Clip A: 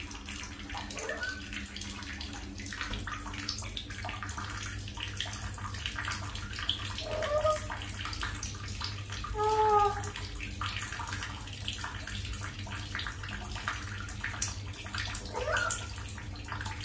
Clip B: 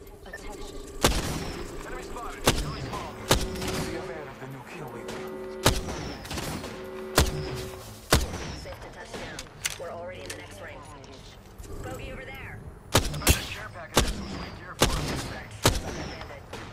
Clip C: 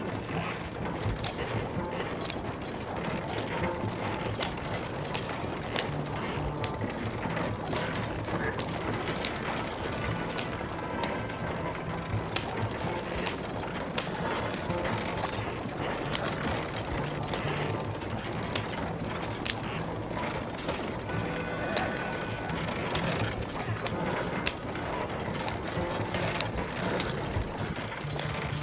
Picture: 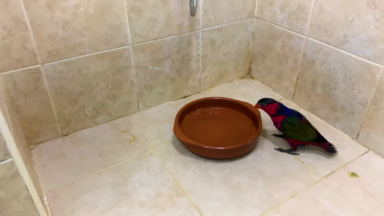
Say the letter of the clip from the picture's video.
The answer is A